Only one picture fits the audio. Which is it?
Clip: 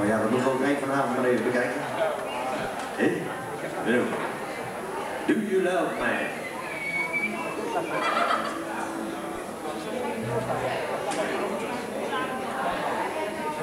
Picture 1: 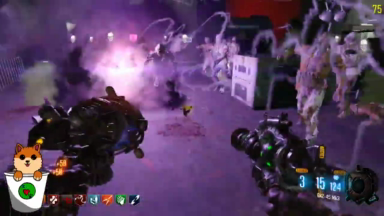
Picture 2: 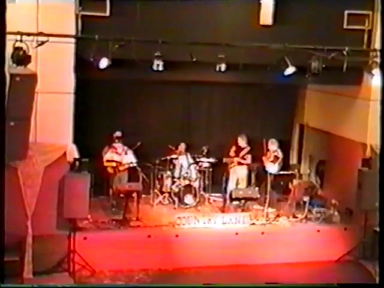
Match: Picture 2